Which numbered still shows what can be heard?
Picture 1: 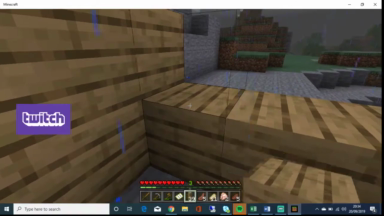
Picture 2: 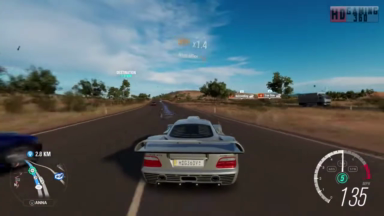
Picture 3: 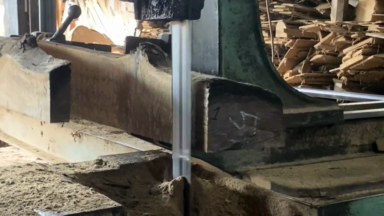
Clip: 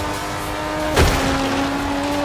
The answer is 2